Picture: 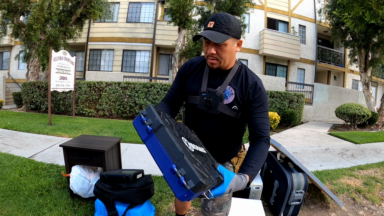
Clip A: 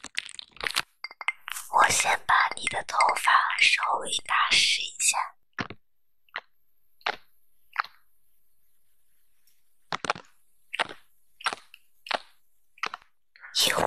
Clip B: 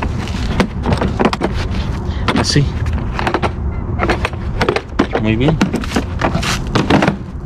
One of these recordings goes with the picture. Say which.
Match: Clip B